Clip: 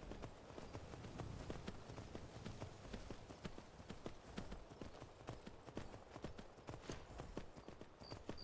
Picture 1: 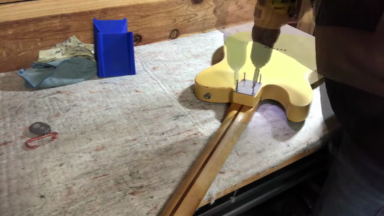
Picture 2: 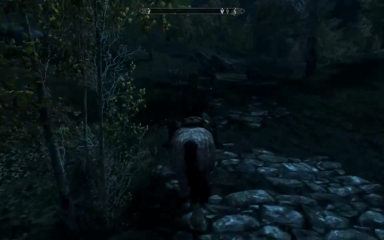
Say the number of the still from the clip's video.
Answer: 2